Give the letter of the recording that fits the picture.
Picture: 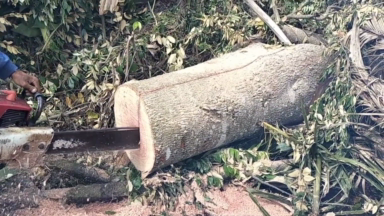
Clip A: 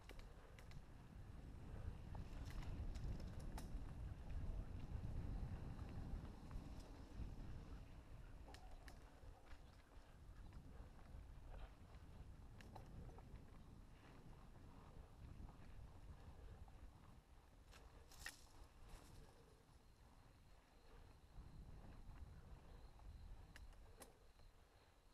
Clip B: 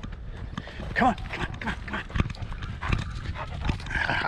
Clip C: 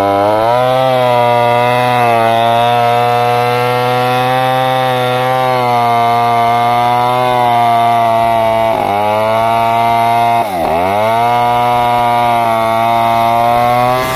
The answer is C